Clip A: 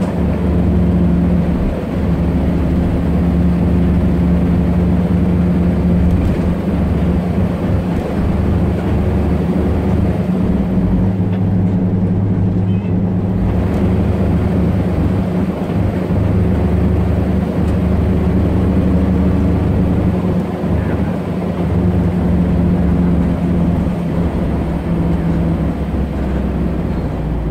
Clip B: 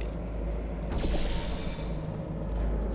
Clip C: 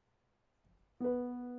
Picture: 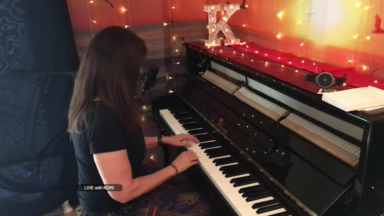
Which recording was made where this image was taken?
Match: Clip C